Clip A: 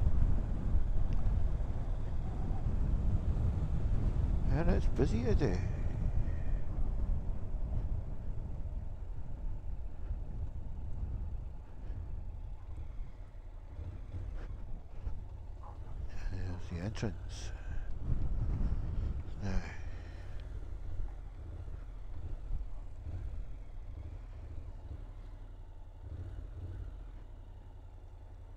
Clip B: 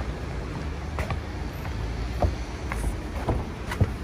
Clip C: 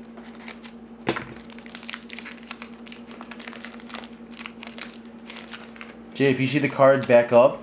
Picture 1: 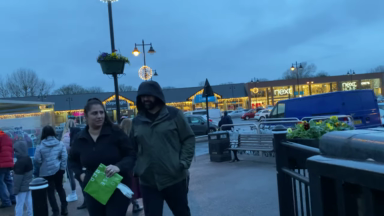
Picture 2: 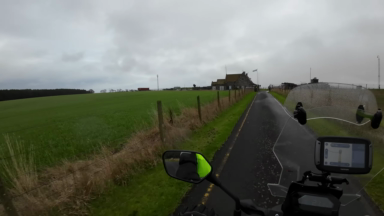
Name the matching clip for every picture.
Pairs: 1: B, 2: A